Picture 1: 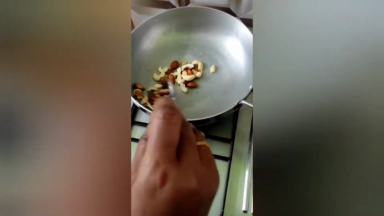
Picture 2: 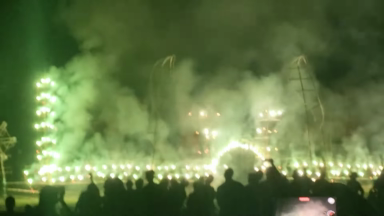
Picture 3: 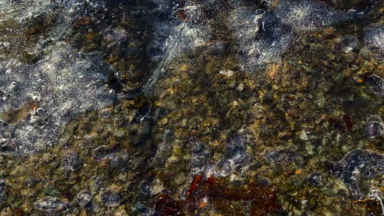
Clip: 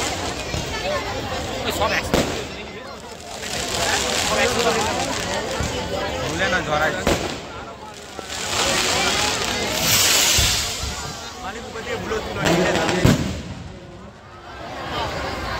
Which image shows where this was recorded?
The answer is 2